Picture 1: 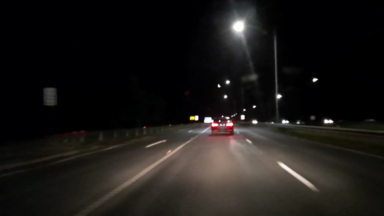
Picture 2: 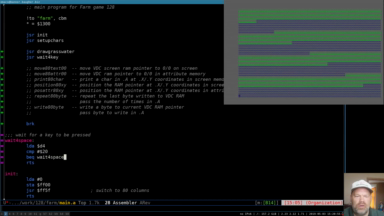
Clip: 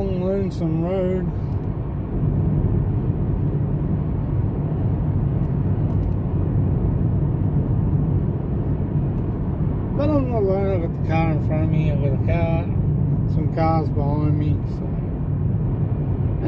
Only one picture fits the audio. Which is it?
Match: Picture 1